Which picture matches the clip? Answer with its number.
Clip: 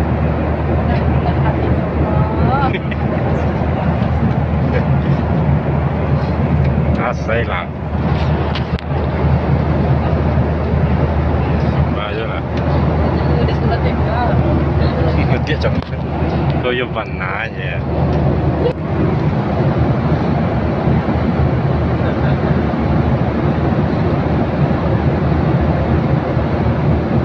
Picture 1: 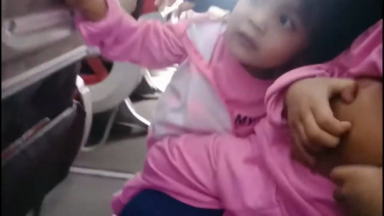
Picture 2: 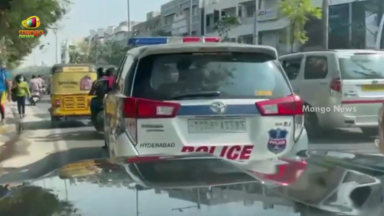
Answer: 1